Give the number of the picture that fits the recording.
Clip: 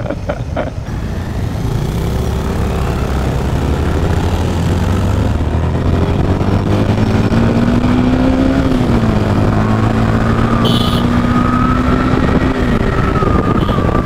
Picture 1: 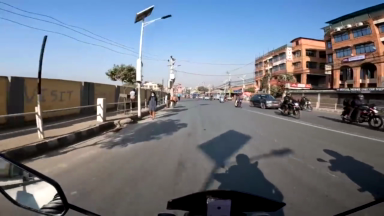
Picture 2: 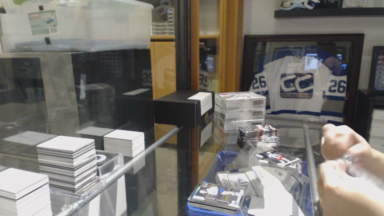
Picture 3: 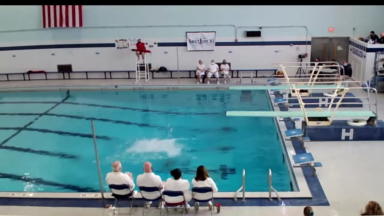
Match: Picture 1